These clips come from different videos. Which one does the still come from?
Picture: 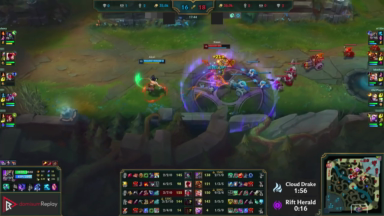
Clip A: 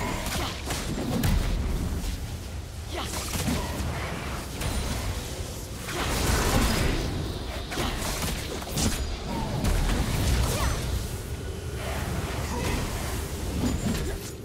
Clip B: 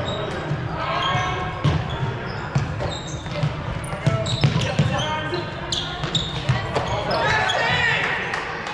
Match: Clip A